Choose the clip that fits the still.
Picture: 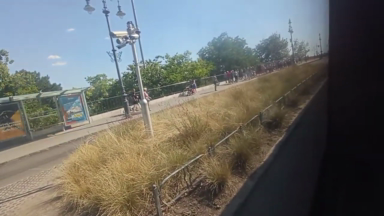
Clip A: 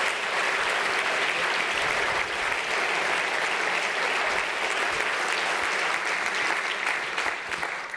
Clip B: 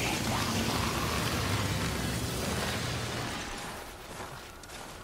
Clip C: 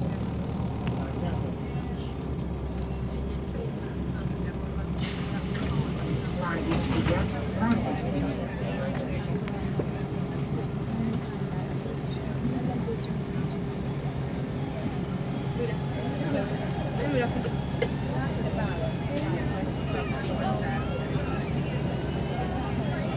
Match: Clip C